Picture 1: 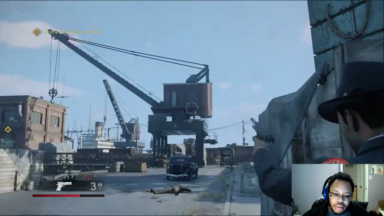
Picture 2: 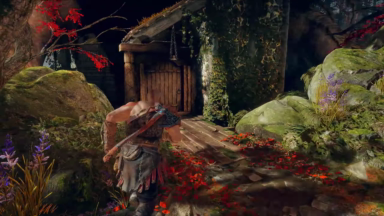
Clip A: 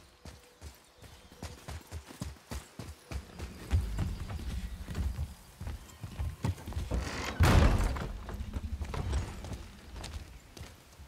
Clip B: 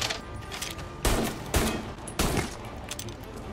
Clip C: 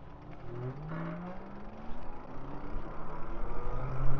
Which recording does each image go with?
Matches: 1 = B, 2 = A